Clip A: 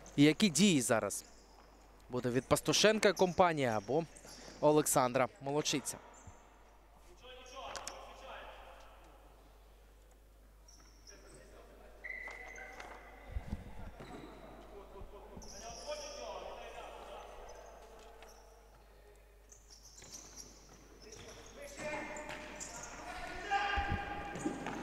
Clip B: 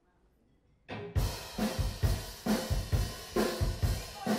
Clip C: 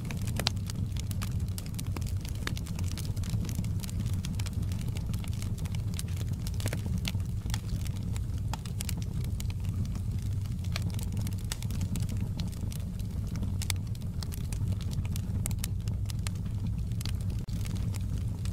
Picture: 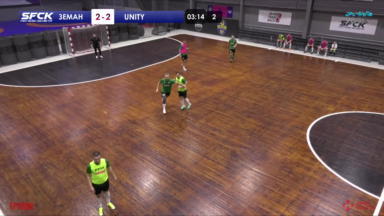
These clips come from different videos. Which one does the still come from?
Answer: A